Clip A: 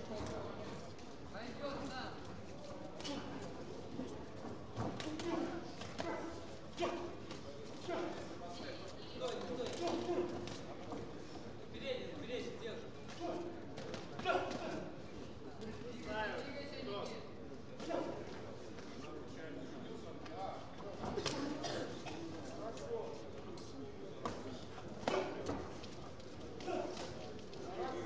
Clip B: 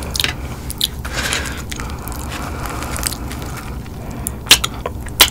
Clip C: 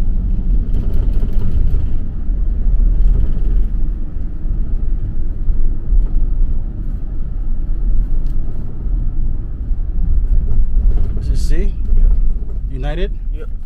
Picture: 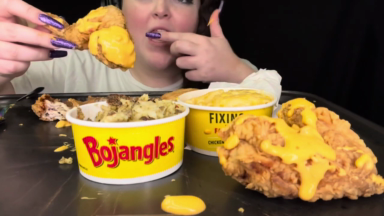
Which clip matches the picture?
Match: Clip B